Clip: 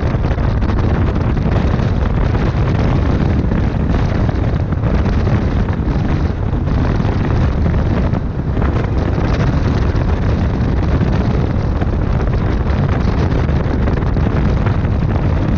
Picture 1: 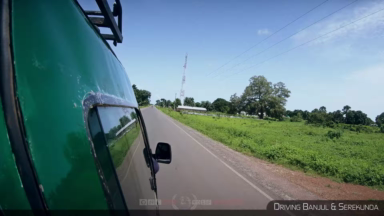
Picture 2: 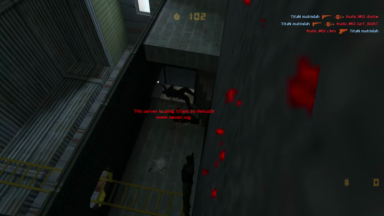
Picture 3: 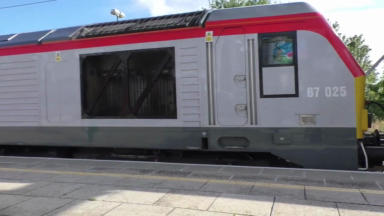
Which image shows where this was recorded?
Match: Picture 1